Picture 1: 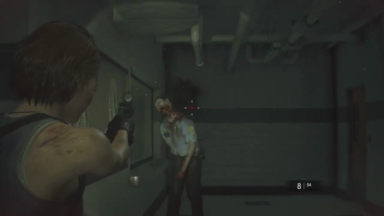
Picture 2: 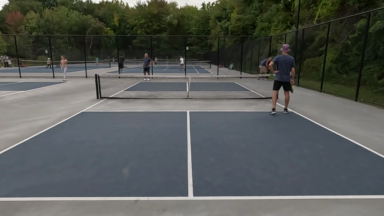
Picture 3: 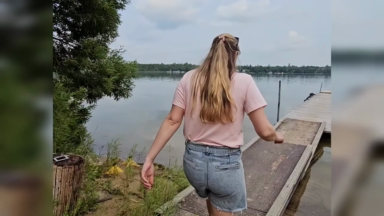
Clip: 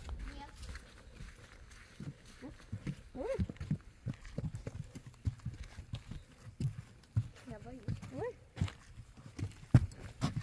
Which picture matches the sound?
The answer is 3